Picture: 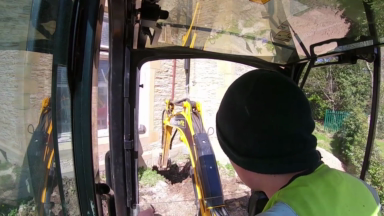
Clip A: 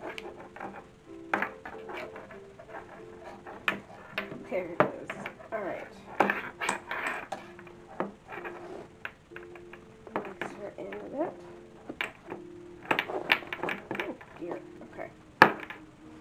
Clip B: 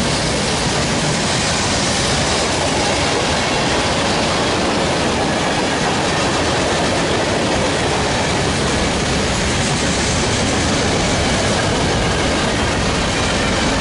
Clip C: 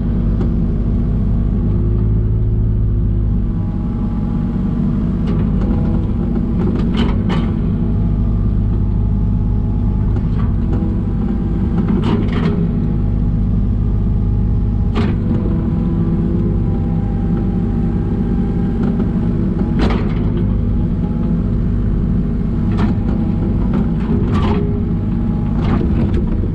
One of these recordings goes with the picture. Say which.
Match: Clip C